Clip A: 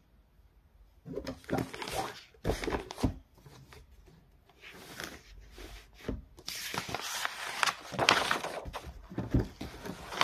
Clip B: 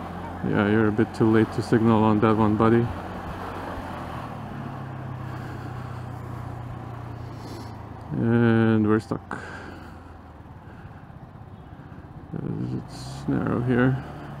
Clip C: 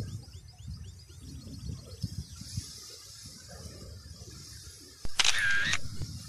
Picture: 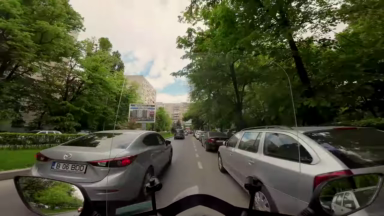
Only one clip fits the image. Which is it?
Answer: B